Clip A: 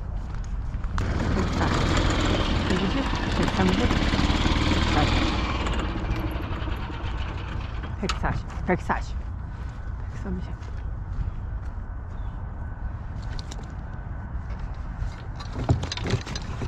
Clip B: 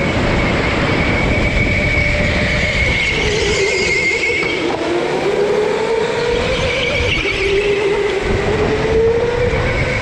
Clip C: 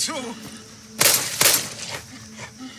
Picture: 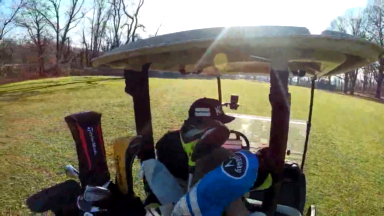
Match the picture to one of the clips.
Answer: A